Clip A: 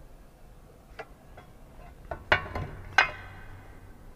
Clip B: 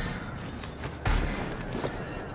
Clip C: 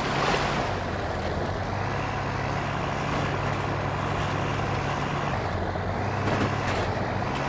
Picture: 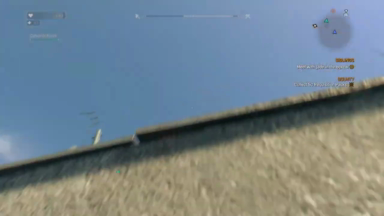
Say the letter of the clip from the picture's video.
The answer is B